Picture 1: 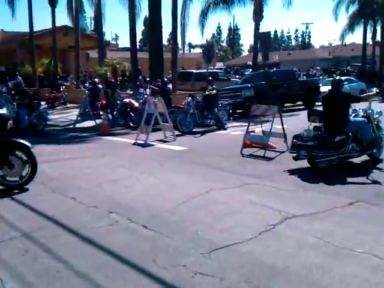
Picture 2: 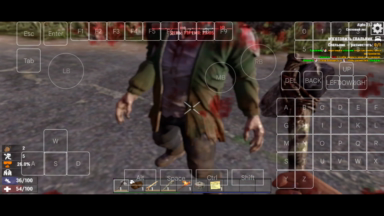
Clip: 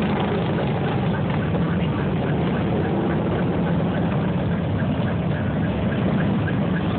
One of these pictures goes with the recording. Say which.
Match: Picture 1